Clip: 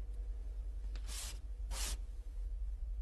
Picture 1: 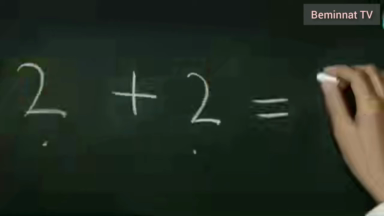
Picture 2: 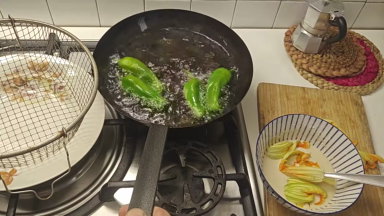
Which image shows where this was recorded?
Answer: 1